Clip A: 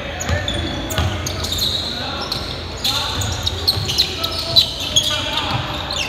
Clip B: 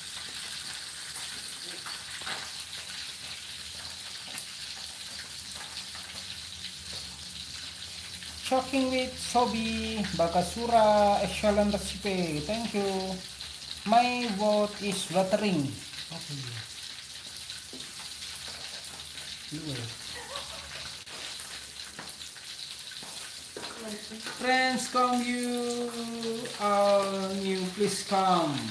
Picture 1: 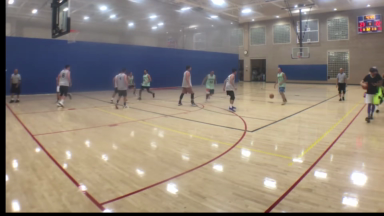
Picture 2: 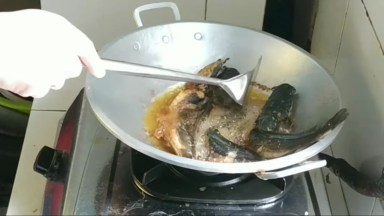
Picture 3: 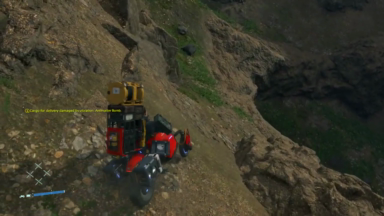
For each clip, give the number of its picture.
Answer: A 1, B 2